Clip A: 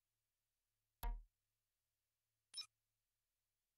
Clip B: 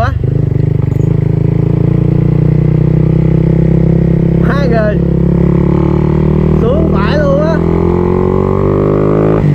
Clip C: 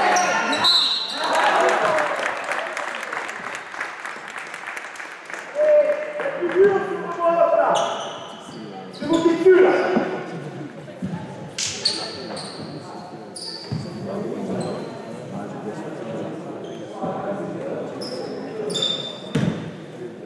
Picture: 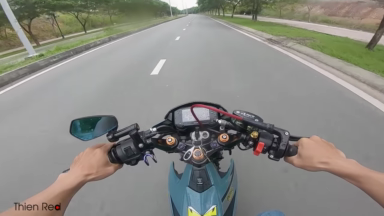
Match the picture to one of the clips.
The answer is B